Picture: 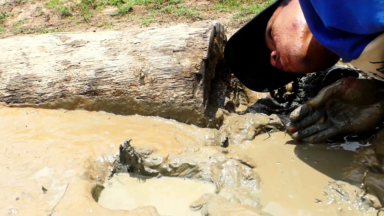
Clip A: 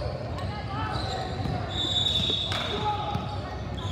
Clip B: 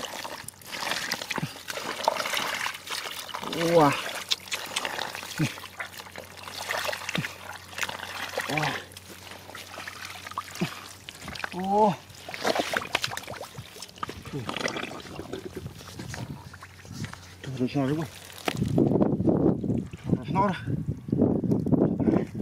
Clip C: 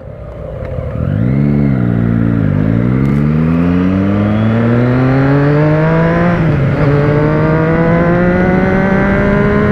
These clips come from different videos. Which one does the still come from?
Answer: B